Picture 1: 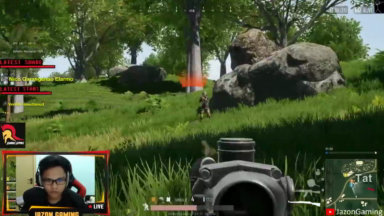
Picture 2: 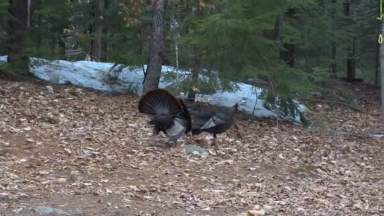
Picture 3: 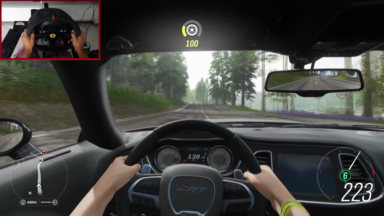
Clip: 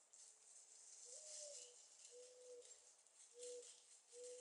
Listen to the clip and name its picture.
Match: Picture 2